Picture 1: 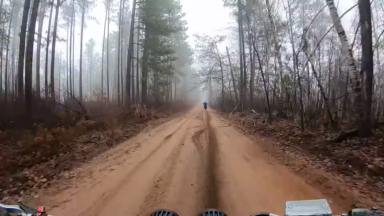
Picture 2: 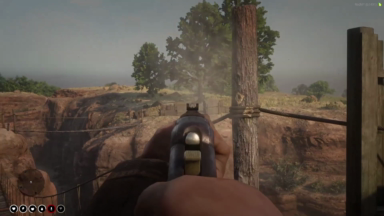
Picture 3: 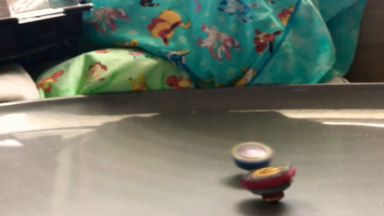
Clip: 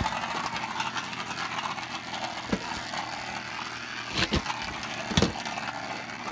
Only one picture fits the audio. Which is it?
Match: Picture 3